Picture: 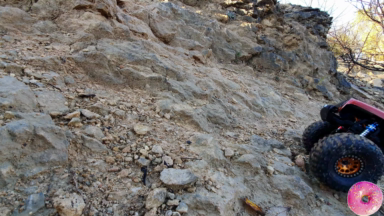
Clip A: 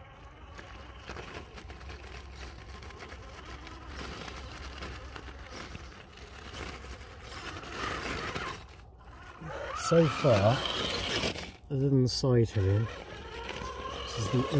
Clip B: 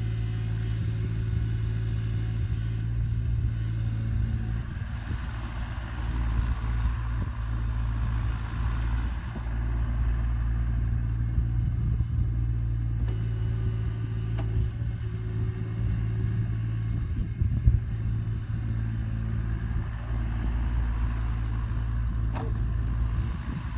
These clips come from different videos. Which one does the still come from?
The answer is A